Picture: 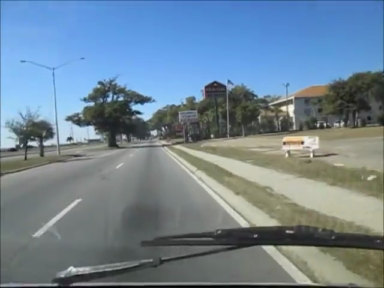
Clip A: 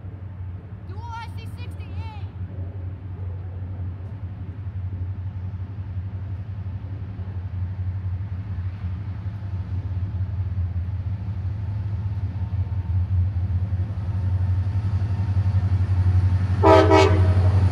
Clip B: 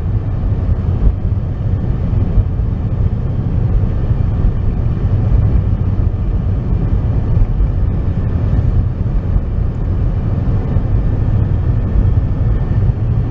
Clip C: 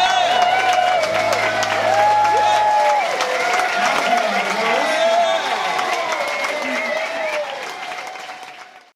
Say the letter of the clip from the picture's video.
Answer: B